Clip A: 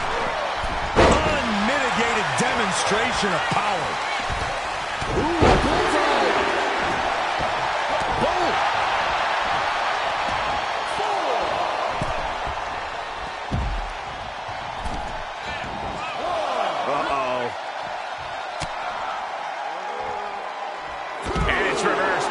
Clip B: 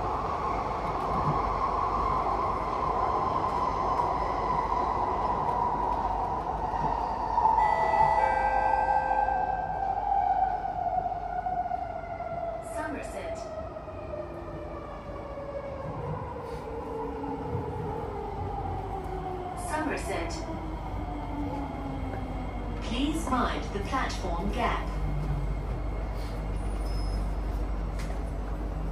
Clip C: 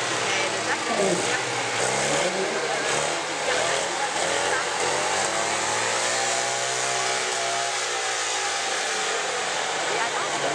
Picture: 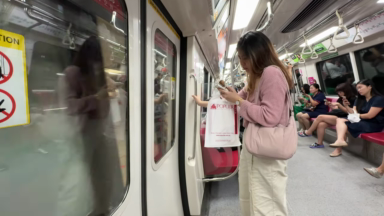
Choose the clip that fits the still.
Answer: B